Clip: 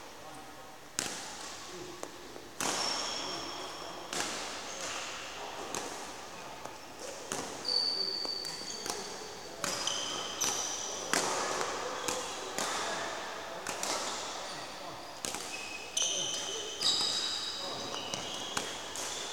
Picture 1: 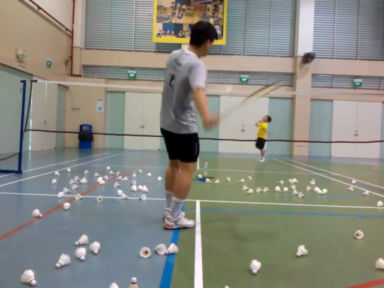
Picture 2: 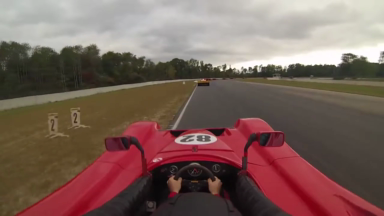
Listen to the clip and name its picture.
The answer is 1